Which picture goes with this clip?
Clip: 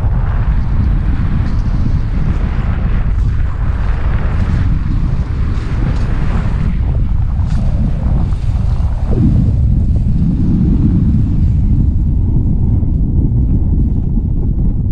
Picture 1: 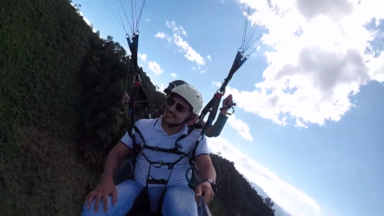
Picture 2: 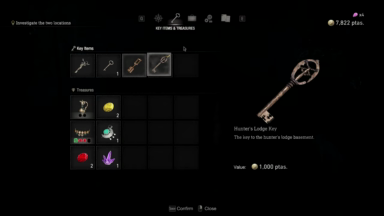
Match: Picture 1